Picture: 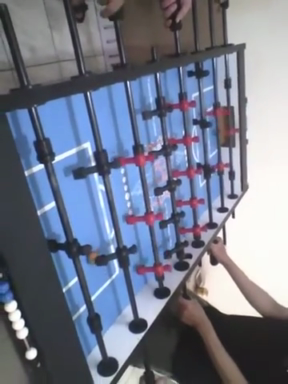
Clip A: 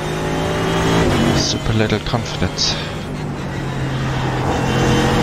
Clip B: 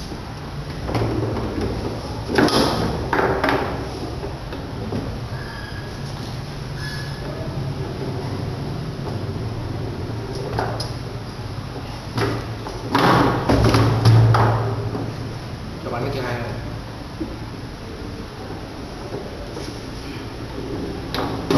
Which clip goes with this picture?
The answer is B